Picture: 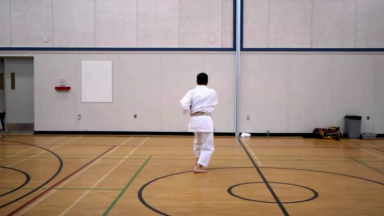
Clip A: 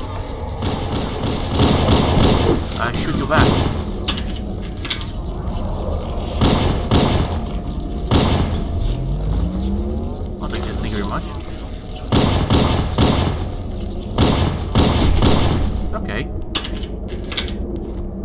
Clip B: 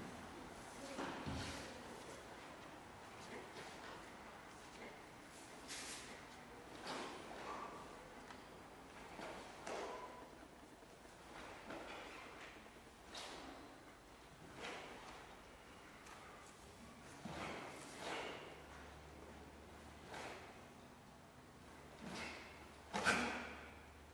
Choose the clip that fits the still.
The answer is B